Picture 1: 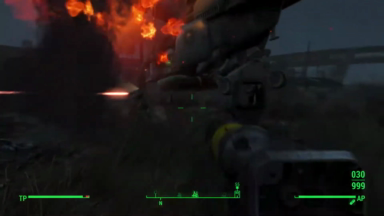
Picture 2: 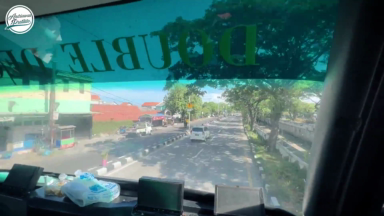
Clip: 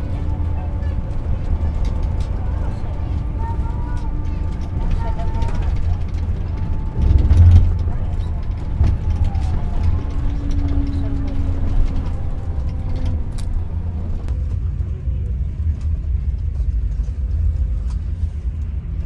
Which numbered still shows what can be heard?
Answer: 2